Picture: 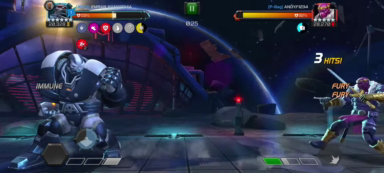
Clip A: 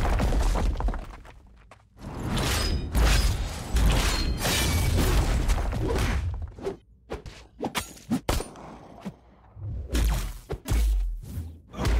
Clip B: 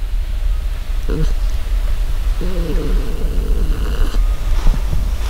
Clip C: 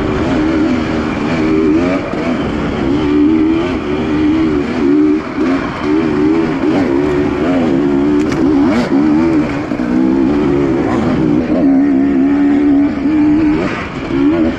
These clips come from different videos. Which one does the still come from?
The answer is A